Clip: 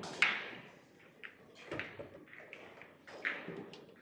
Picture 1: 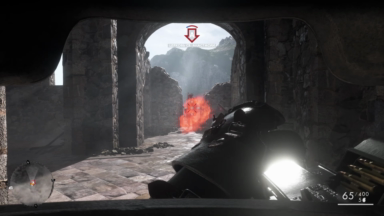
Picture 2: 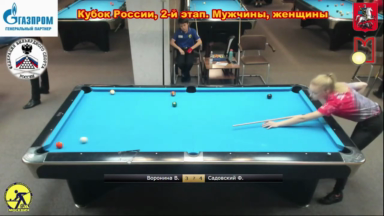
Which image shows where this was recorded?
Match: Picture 2